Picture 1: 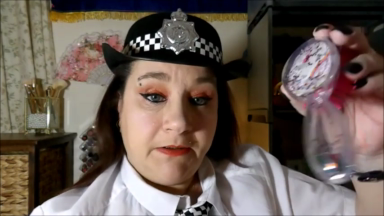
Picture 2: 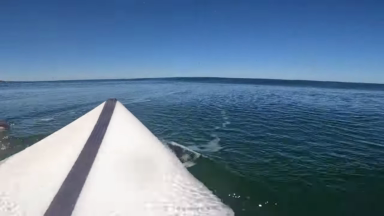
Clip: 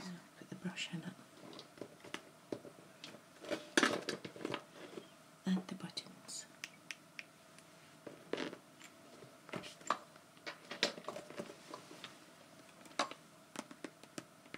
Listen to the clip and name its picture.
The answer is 1